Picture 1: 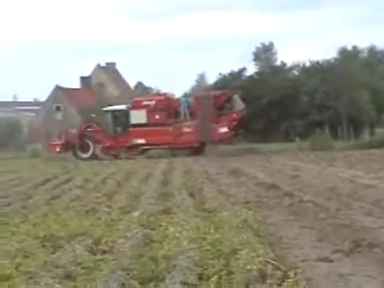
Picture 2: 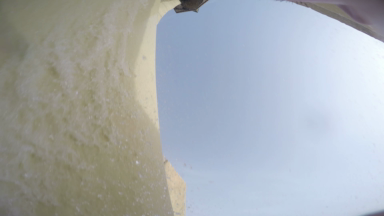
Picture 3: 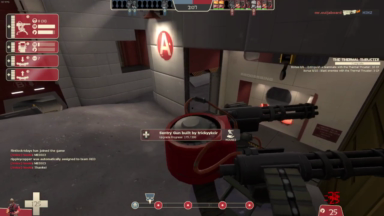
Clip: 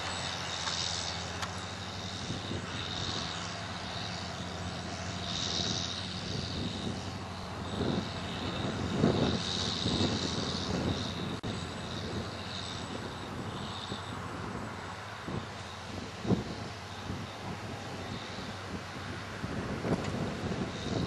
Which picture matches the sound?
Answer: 1